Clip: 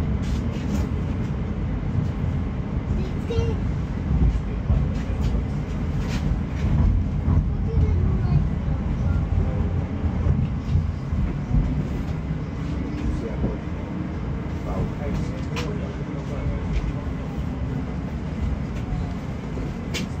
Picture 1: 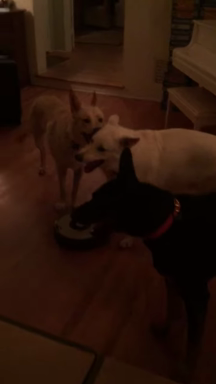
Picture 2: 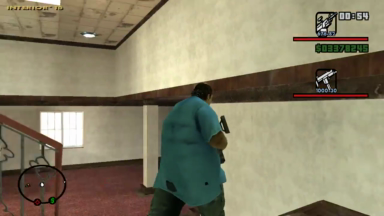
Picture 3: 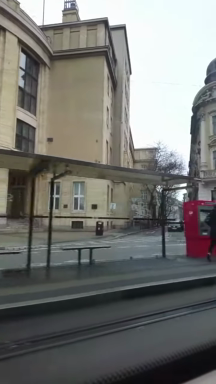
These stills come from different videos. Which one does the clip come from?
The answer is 3